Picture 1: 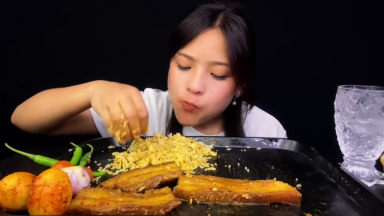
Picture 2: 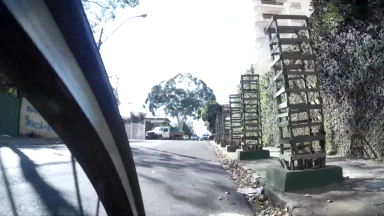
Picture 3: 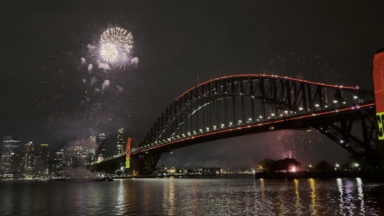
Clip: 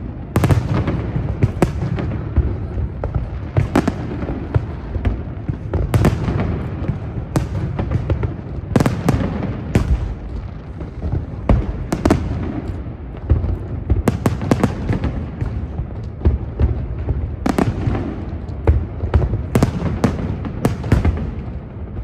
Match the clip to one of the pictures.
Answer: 3